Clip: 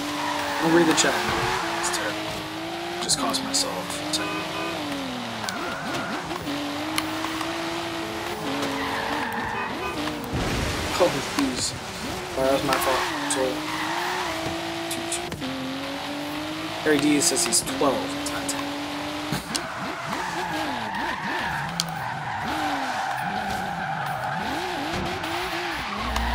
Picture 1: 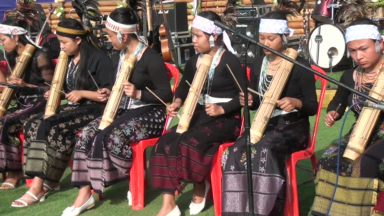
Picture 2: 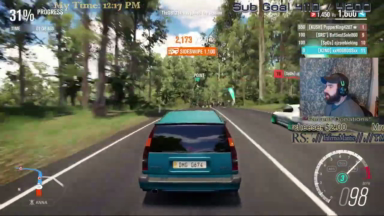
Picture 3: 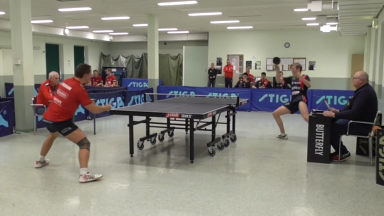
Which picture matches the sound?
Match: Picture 2